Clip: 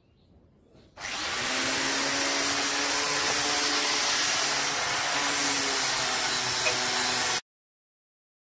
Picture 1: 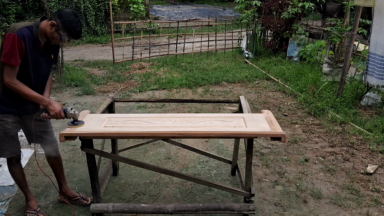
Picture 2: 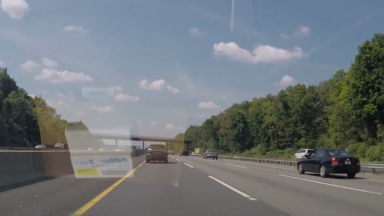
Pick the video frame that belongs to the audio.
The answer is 1